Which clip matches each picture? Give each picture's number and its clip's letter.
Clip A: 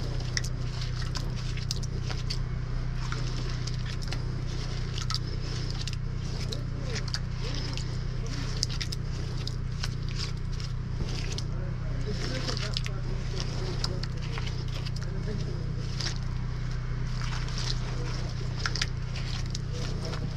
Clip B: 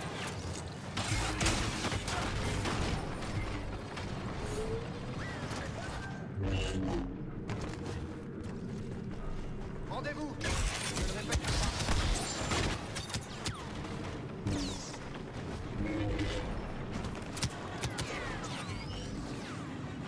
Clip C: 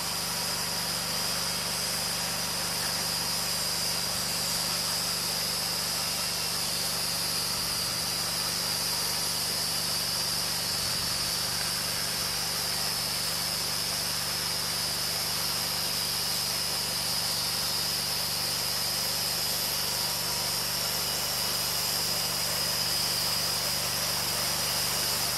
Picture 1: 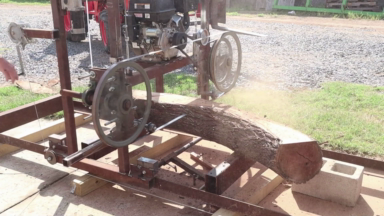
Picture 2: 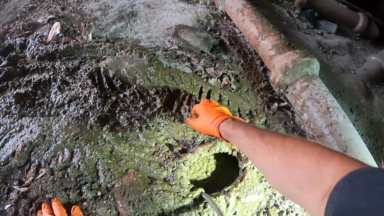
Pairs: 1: C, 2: A